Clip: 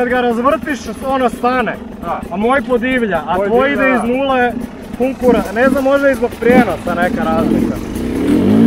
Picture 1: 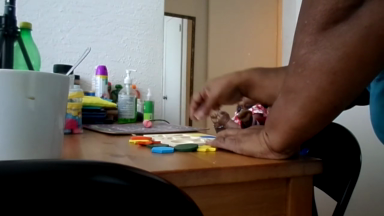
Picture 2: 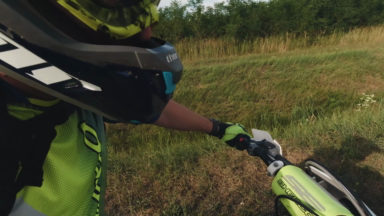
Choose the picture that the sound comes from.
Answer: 2